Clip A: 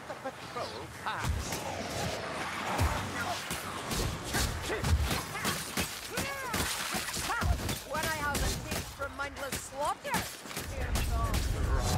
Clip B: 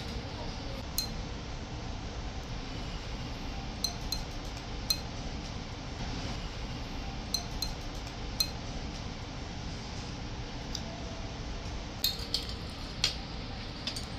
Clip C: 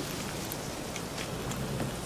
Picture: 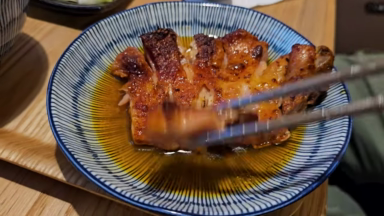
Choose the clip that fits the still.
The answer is B